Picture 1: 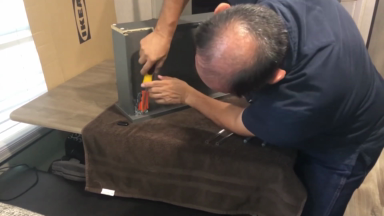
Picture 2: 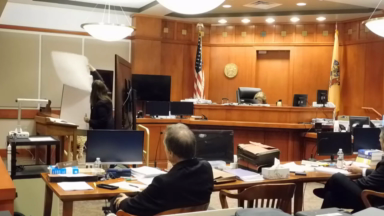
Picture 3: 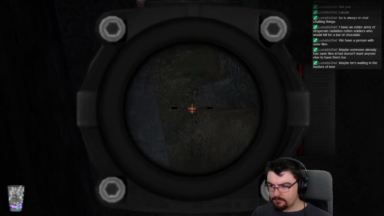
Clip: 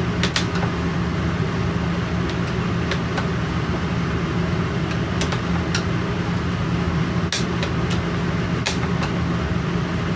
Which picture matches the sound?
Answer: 1